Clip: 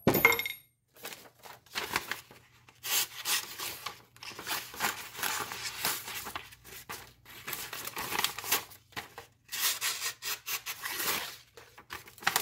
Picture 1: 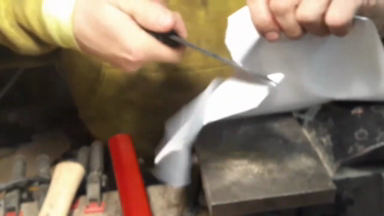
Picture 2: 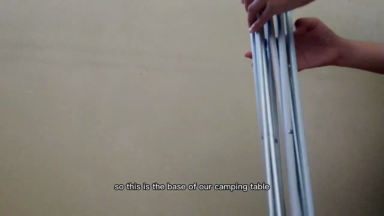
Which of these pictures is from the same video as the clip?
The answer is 1